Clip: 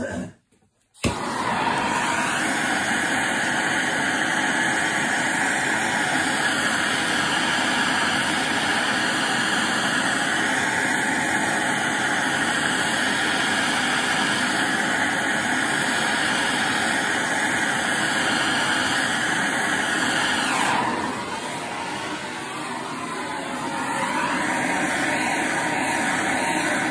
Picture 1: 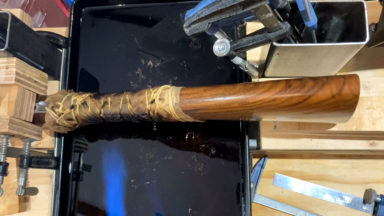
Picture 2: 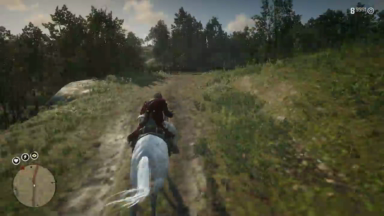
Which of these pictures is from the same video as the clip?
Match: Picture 1